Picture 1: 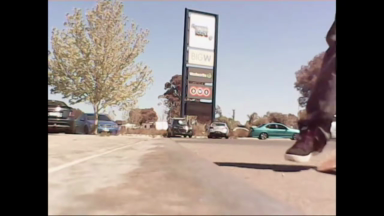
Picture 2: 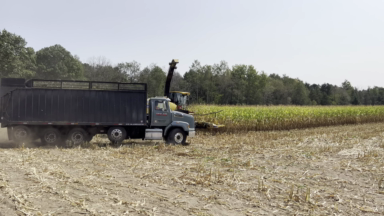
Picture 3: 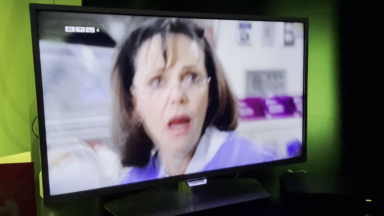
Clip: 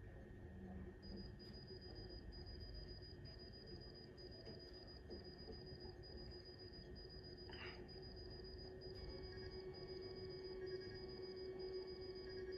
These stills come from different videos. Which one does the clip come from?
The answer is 3